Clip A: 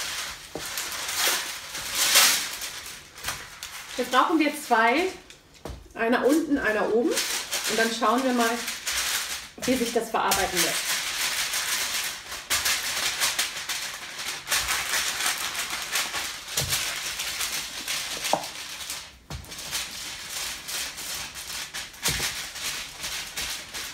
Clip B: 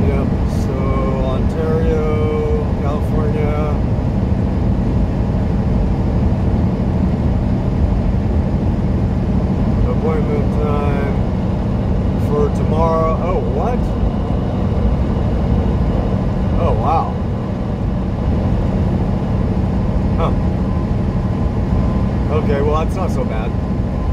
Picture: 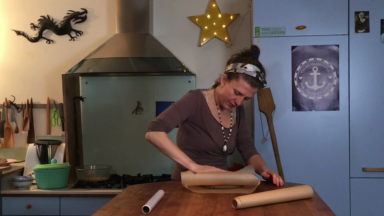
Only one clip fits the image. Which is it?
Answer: A